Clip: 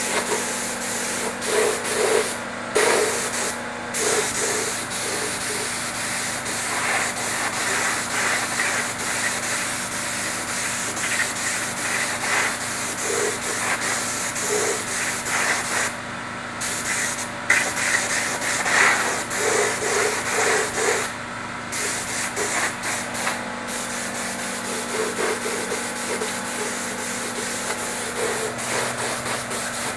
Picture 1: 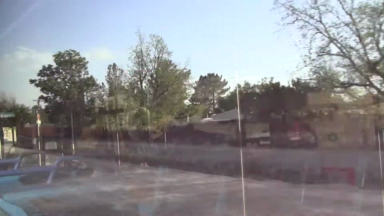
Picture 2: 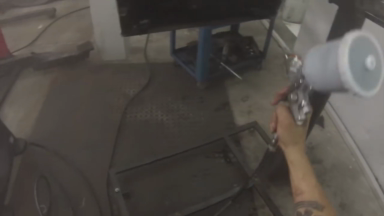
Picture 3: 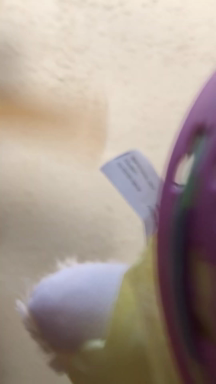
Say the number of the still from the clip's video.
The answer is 2